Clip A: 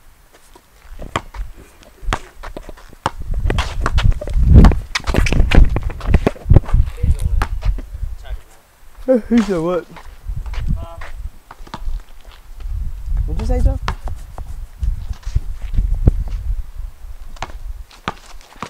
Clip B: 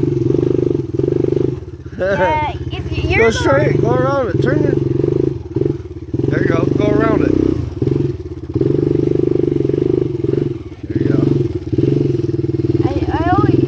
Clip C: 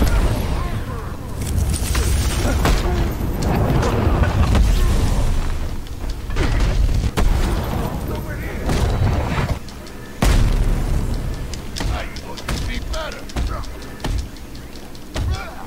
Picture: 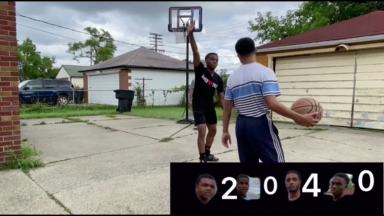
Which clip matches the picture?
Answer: A